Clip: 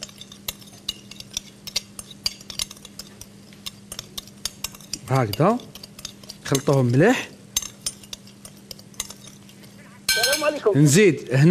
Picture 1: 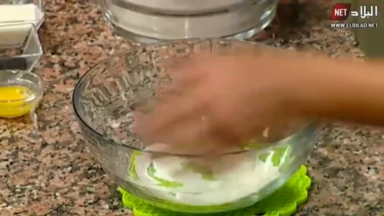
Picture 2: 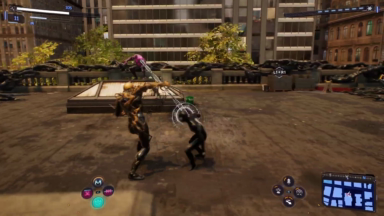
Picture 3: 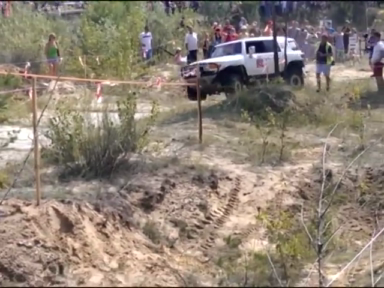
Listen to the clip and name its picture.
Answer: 1